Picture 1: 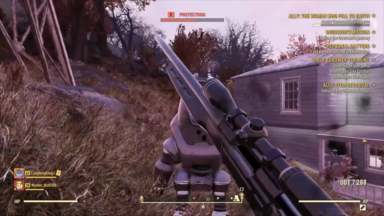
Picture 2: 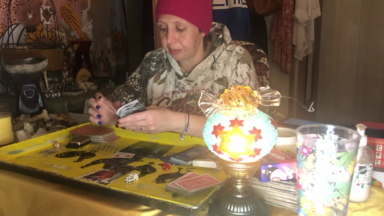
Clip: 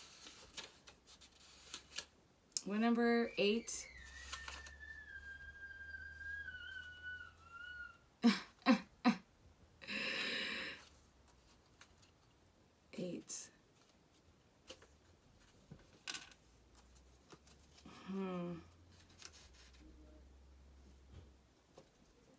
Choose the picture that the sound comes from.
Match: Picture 2